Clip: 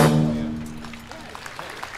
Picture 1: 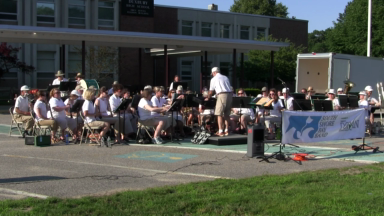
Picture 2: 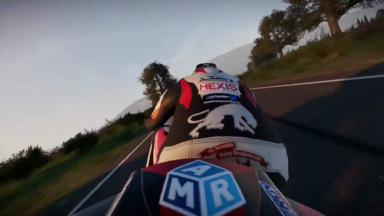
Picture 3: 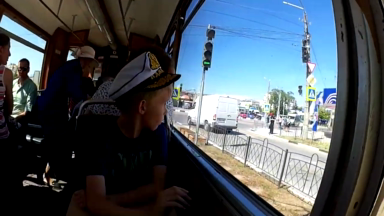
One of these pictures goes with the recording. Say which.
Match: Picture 1